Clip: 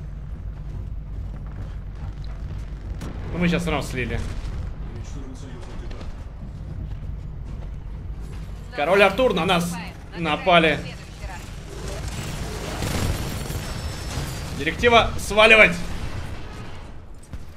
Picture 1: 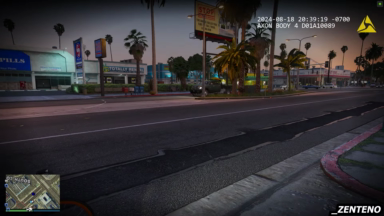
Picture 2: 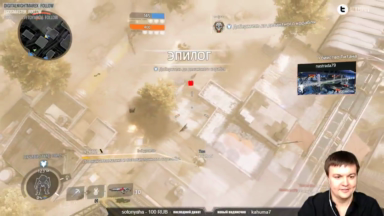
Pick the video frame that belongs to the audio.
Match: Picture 2